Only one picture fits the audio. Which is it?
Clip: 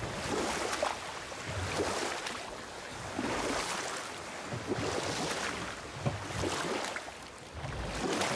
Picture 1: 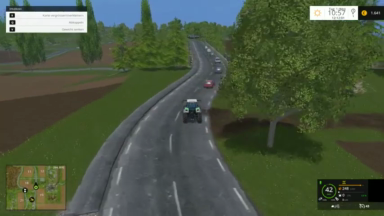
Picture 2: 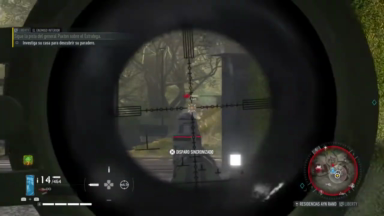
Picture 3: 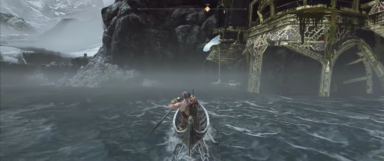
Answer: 3